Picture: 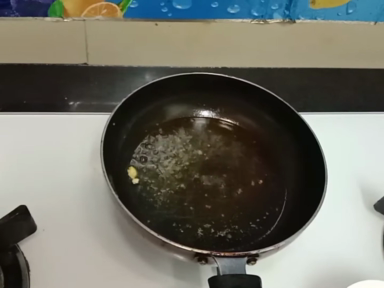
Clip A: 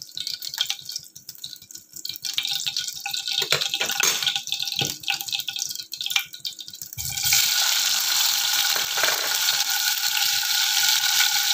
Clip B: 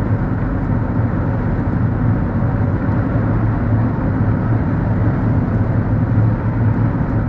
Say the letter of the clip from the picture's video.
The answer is A